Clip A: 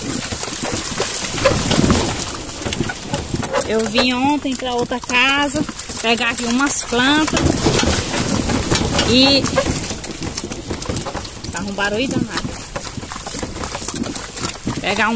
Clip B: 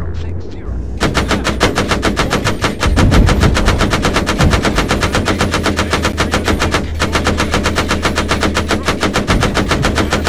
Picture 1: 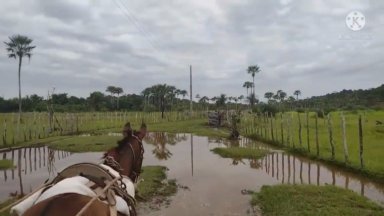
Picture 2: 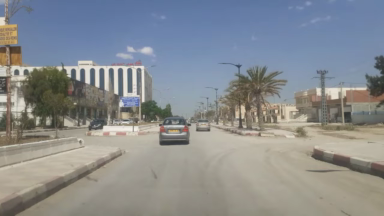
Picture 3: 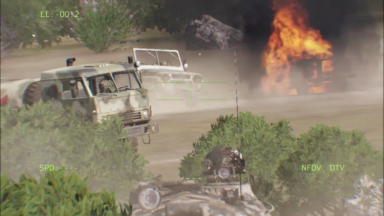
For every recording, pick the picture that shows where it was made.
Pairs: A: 1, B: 3